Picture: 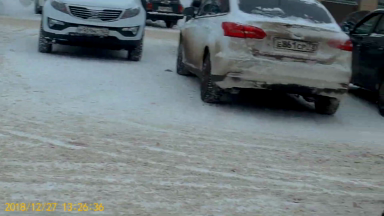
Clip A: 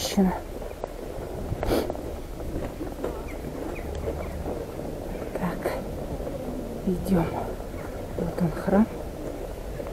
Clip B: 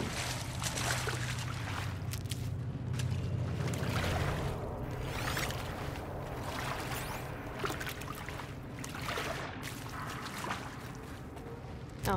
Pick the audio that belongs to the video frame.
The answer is A